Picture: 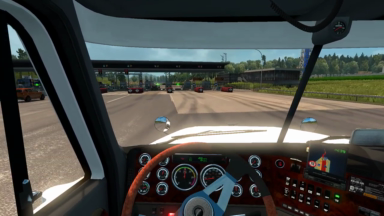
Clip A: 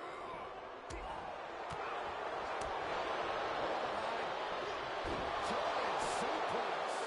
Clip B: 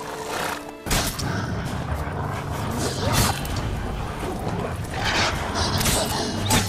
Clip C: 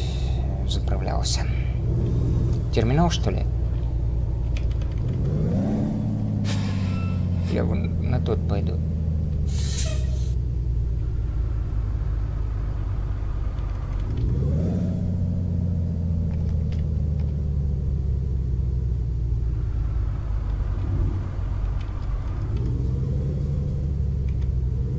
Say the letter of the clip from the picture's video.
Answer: C